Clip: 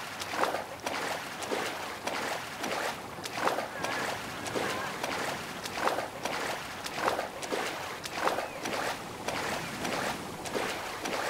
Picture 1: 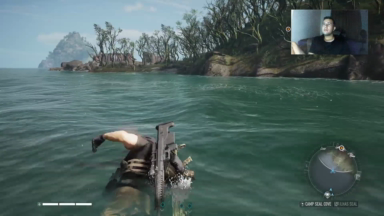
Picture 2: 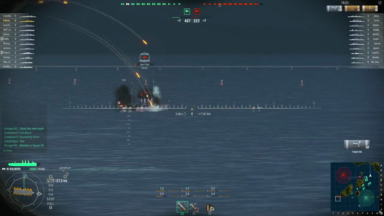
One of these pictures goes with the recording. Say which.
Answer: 1